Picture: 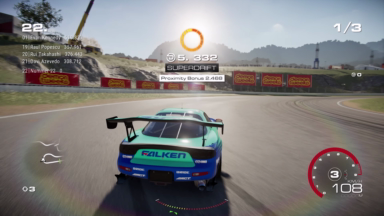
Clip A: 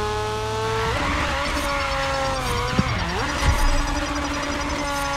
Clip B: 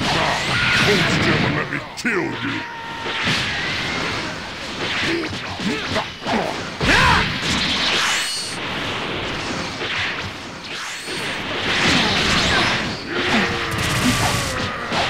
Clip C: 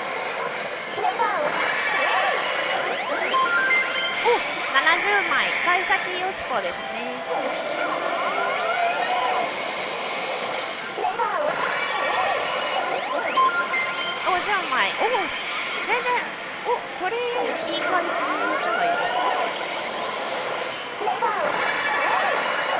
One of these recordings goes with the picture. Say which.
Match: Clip A